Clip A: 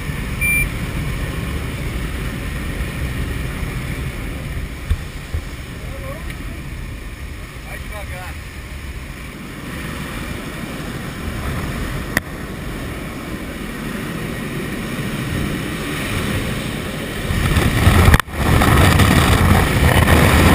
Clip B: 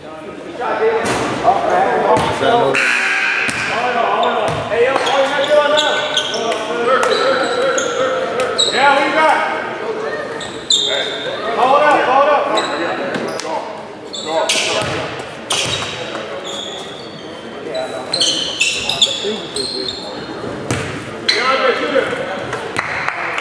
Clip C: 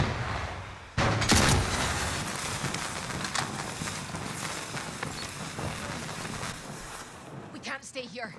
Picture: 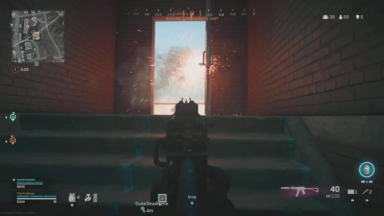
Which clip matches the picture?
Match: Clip C